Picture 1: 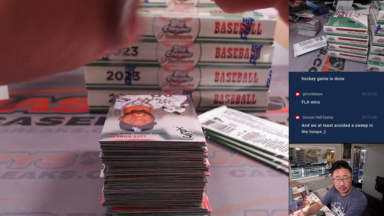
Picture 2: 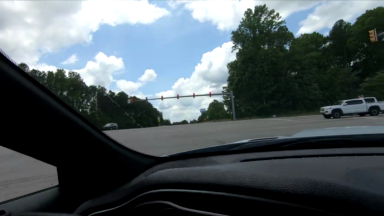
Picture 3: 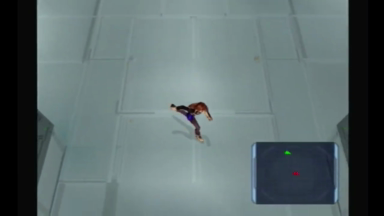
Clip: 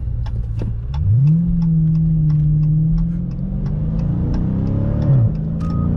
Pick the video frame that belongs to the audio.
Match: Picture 2